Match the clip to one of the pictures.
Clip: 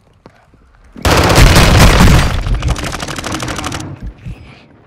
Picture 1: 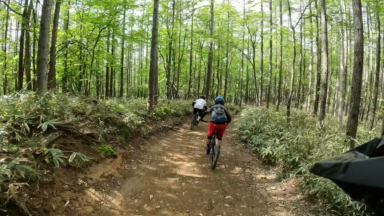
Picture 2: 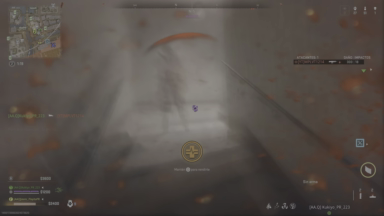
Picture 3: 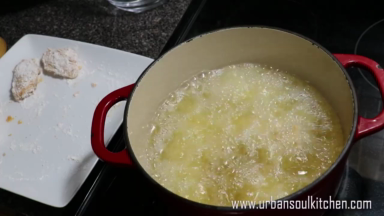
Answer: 2